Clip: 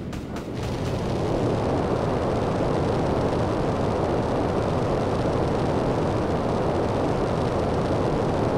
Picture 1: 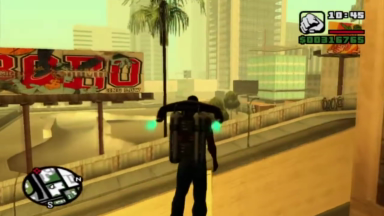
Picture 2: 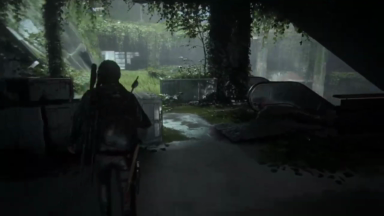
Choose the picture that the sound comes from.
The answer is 1